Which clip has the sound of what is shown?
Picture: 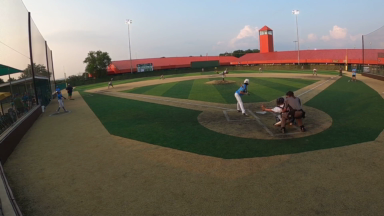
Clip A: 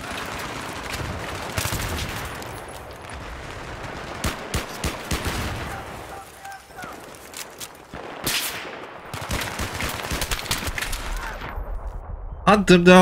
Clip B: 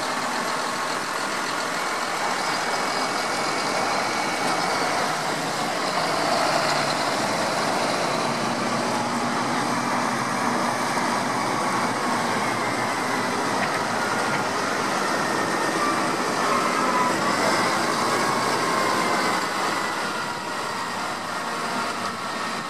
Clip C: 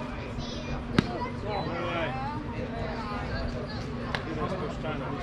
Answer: C